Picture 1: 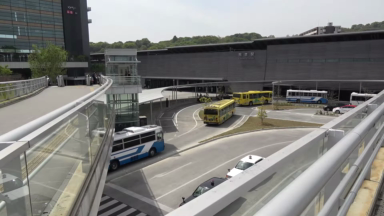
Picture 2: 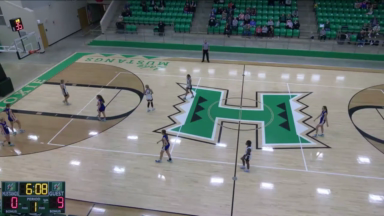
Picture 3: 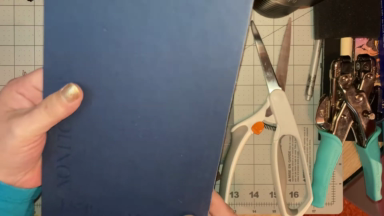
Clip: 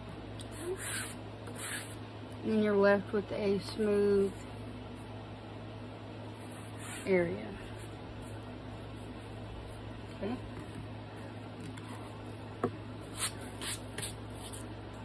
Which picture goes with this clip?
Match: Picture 3